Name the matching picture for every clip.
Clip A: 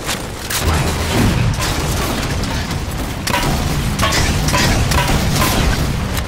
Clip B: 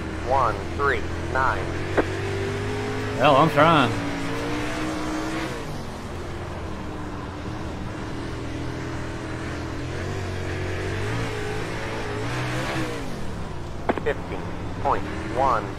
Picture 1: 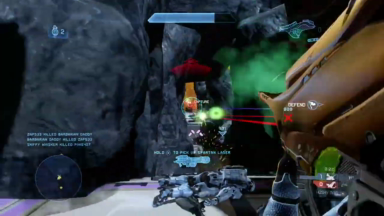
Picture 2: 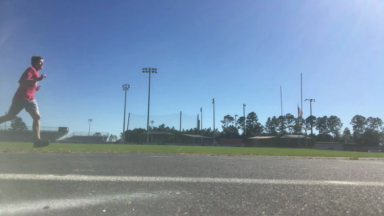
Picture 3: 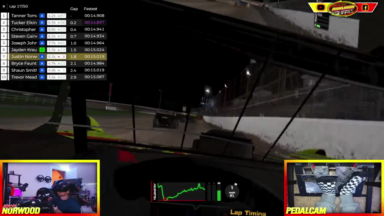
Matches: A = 1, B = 3